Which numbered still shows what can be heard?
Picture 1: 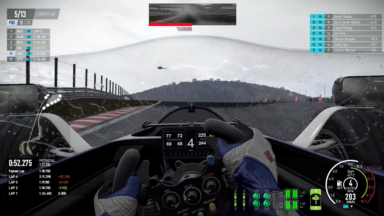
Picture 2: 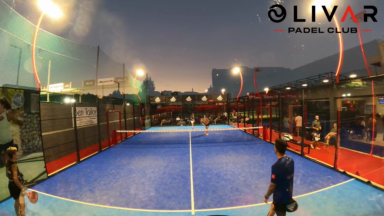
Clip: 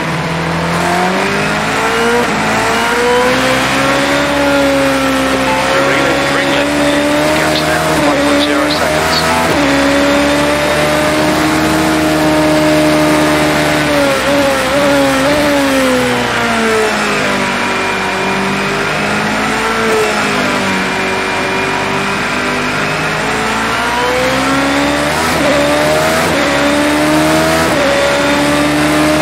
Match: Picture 1